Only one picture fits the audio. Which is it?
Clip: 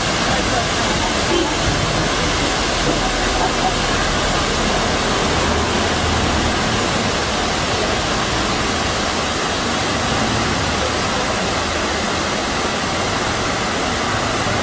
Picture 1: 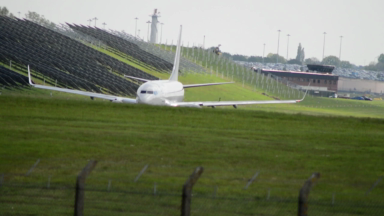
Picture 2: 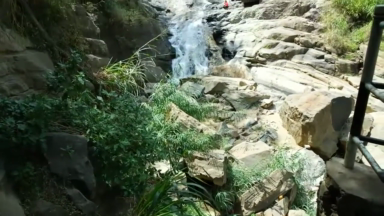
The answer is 2